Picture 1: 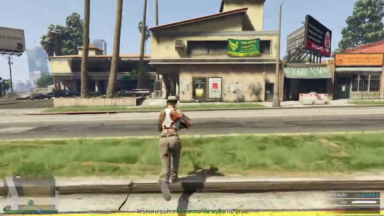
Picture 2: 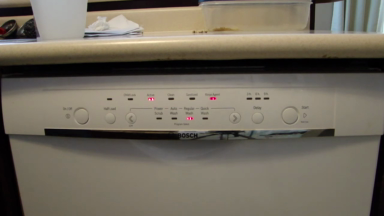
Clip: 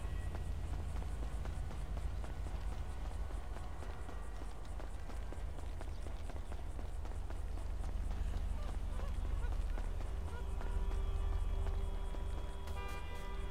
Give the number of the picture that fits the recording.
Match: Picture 1